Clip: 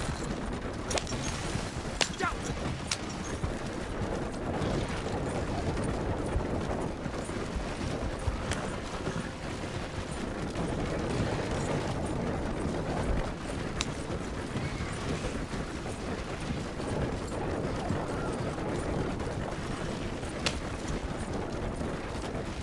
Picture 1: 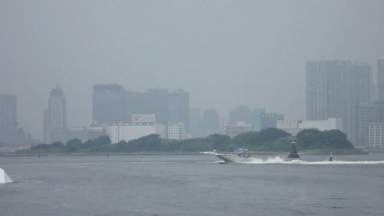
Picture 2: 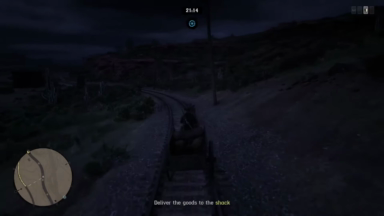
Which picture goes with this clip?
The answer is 2